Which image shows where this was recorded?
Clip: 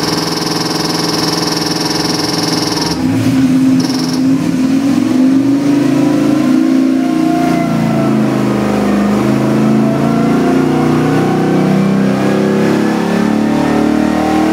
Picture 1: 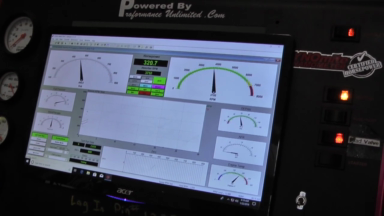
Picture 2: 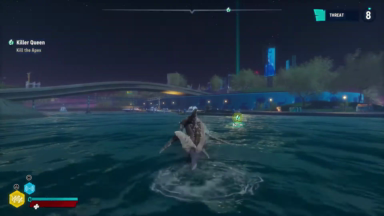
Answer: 1